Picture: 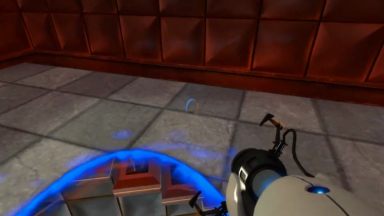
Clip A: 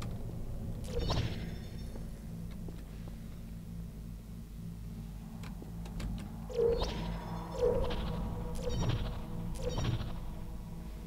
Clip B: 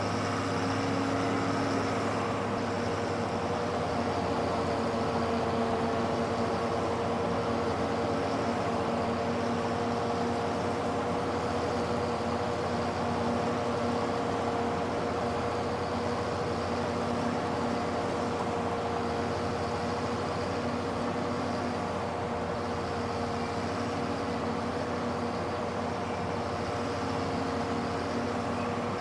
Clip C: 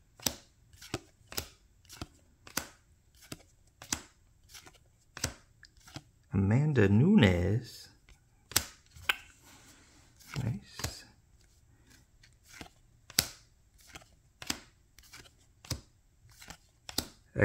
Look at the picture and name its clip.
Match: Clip A